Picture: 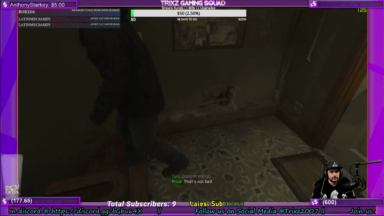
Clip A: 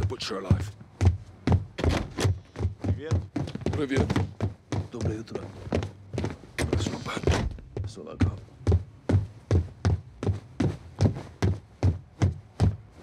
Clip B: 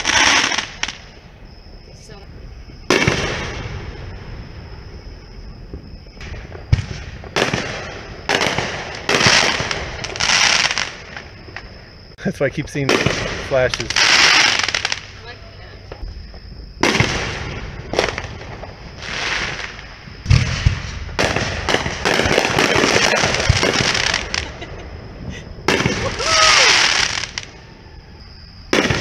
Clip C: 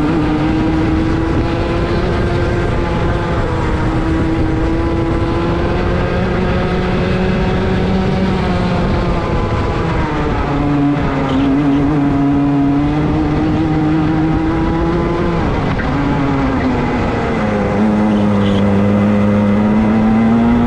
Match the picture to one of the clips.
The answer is A